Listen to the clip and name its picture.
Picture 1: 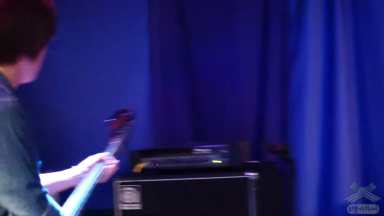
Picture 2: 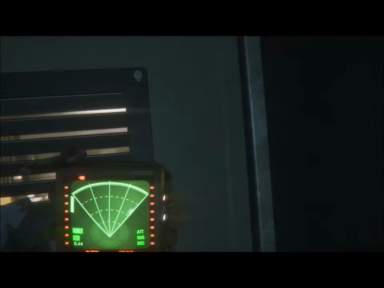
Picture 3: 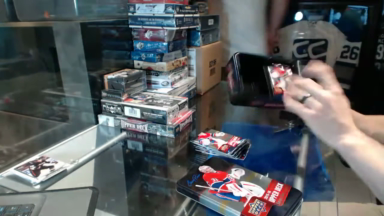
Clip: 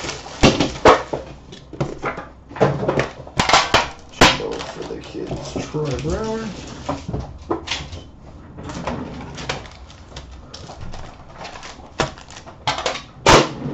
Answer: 3